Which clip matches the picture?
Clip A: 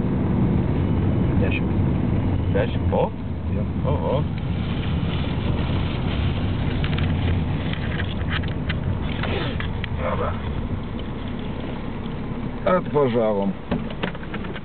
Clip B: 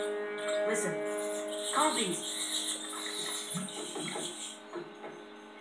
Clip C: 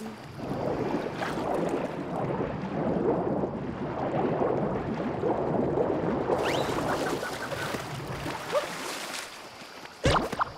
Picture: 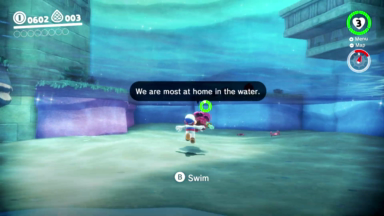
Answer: C